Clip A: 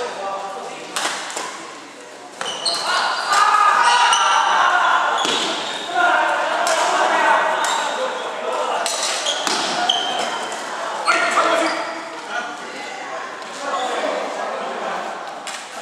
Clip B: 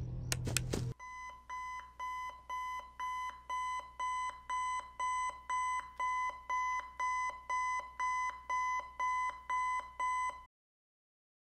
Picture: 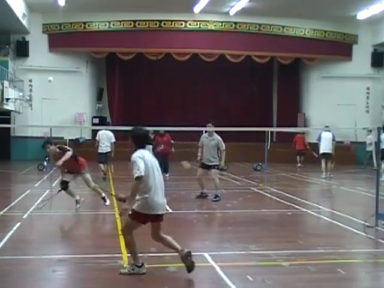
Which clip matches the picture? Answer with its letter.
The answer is A